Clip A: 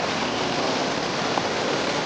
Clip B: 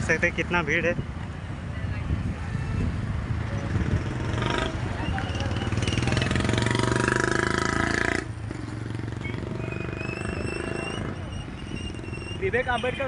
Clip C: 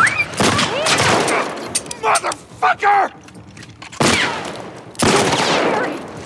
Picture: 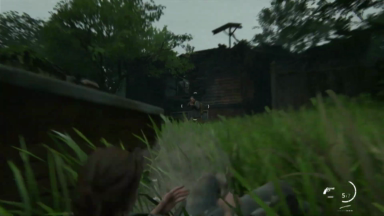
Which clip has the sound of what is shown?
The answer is C